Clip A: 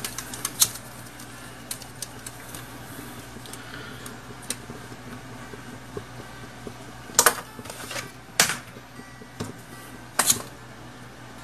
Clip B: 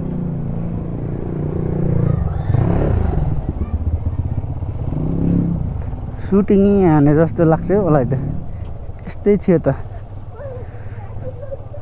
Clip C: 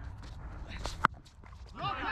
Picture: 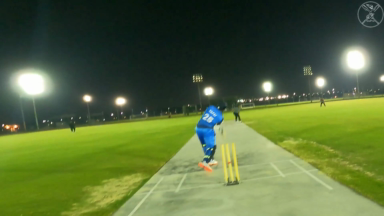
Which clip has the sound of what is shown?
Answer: C